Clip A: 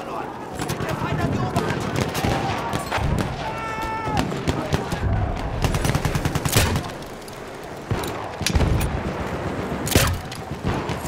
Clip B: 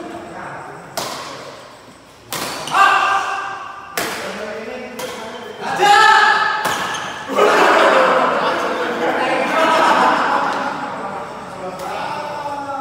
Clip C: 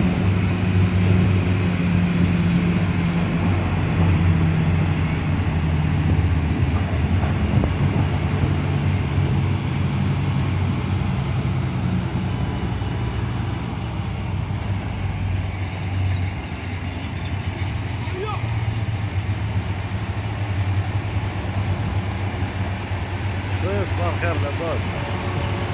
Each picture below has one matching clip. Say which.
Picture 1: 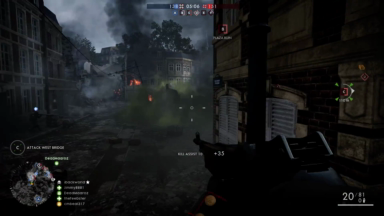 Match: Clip A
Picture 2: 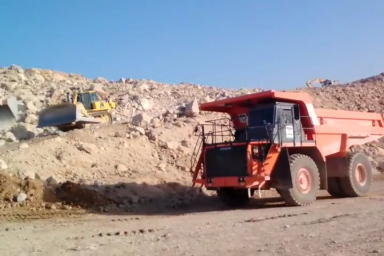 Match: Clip C